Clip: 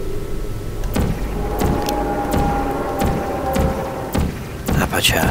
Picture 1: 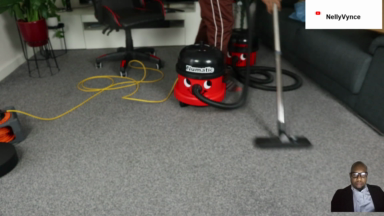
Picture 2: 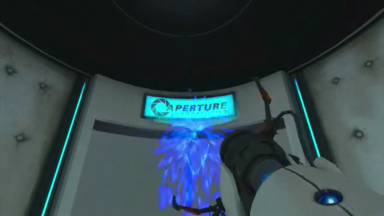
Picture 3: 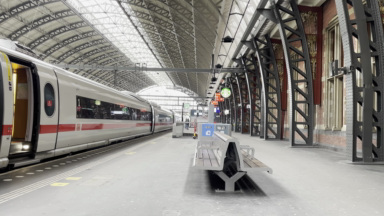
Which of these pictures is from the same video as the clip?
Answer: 2